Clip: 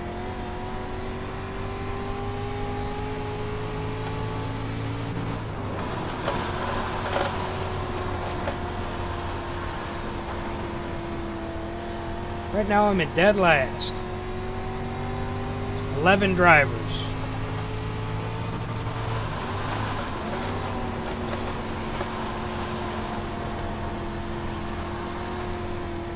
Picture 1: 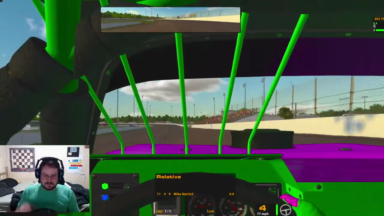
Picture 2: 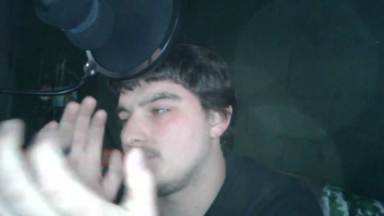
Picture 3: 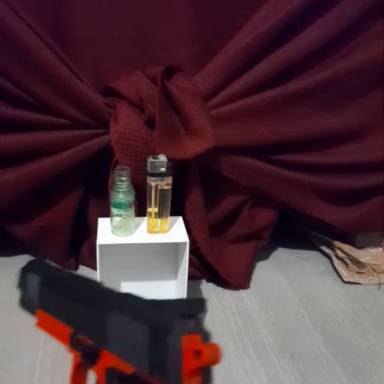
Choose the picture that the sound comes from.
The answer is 1